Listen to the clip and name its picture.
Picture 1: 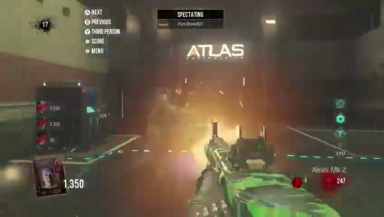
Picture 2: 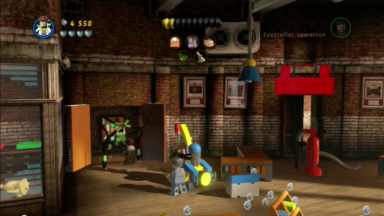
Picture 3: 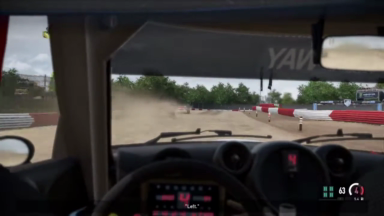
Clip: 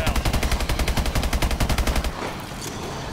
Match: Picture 1